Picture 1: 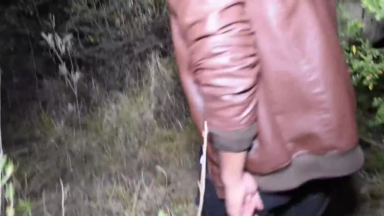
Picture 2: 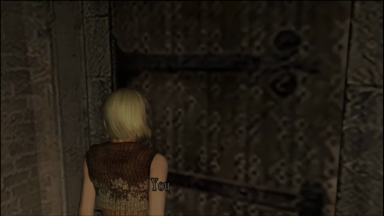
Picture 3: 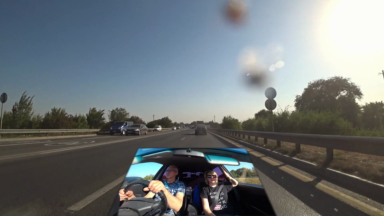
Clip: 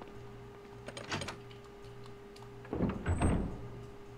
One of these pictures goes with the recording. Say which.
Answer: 2